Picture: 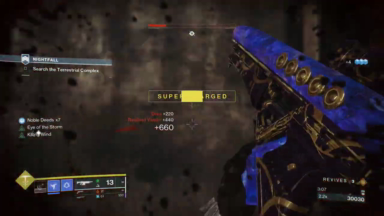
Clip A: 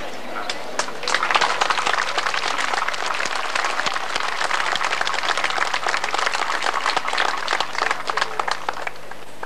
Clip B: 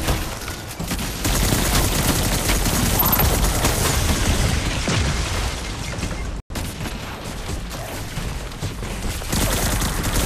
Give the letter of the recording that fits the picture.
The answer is B